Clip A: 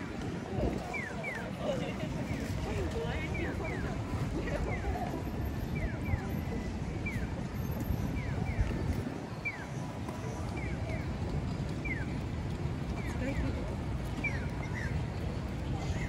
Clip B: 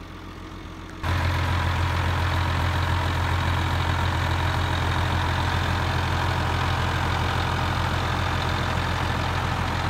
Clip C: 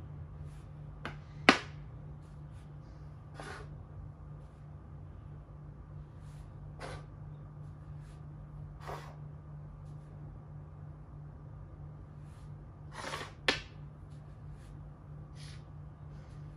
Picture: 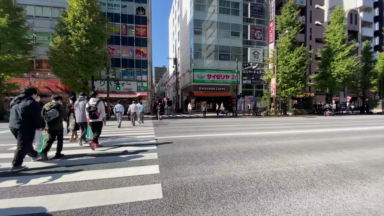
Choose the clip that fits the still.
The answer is A